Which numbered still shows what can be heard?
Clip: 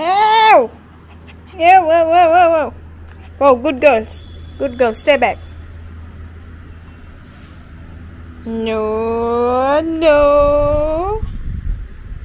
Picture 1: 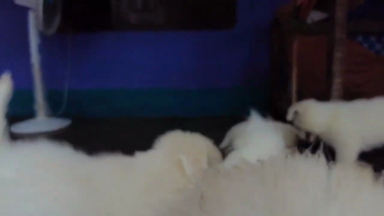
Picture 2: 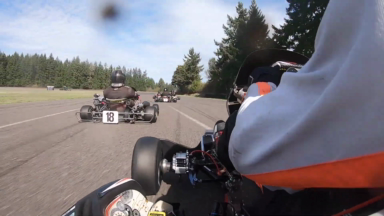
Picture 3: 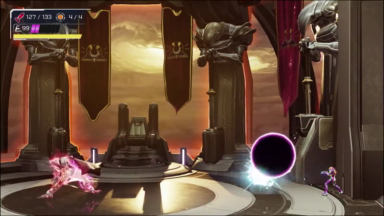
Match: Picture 1